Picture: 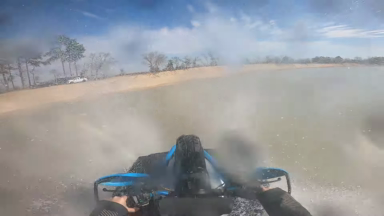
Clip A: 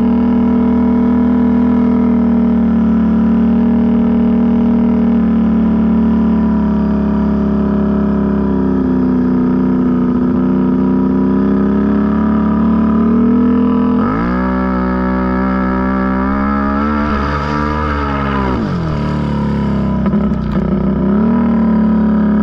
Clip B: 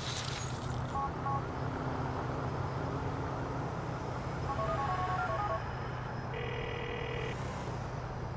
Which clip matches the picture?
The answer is A